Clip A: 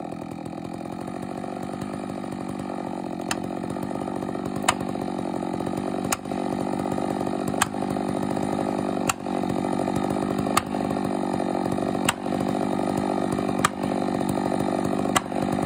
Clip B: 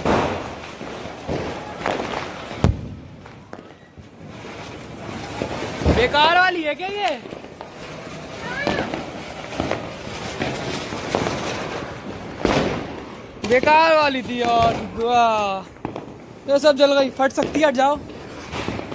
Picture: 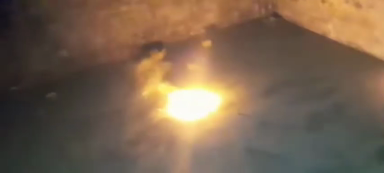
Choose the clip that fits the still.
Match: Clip B